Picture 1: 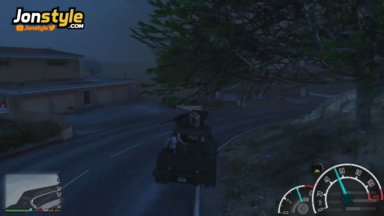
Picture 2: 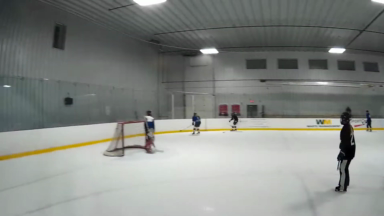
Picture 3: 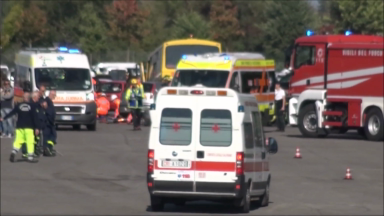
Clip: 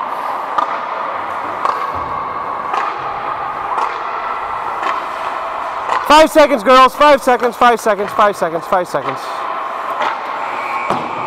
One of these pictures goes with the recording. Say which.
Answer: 2